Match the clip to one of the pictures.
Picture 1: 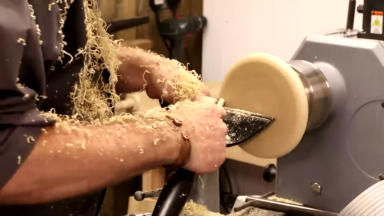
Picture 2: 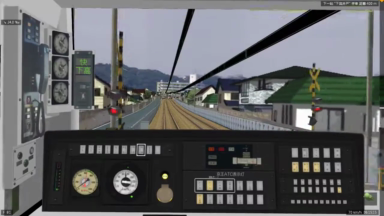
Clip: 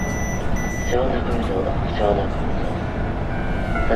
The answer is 2